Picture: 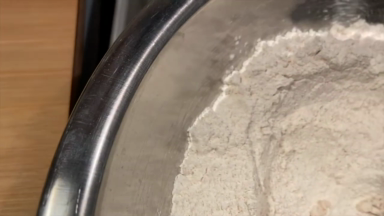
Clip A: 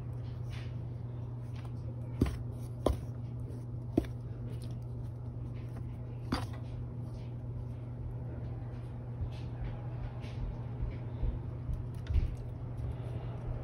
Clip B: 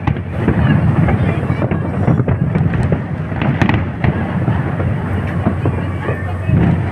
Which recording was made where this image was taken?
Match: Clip A